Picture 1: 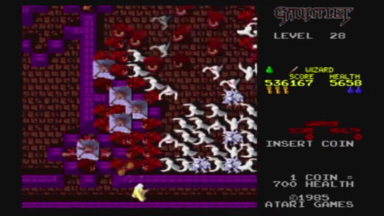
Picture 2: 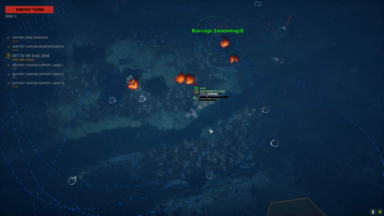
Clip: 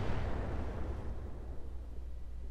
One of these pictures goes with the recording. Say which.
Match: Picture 2